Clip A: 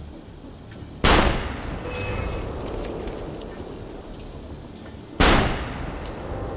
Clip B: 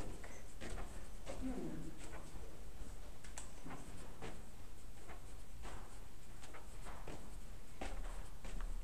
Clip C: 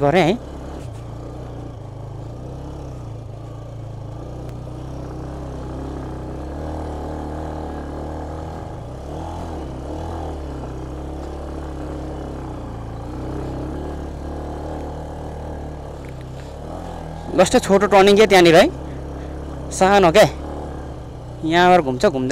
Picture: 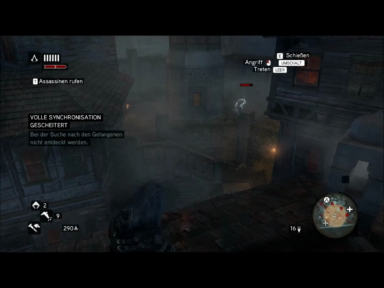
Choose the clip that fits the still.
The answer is A